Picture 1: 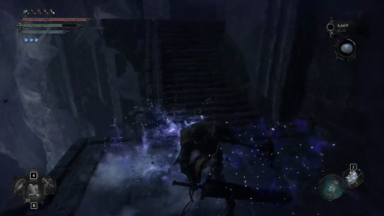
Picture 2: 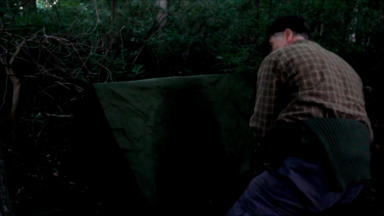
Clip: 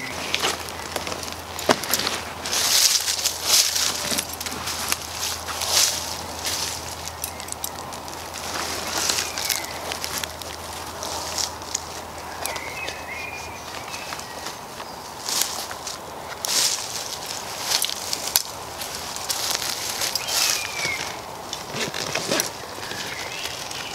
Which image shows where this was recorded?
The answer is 2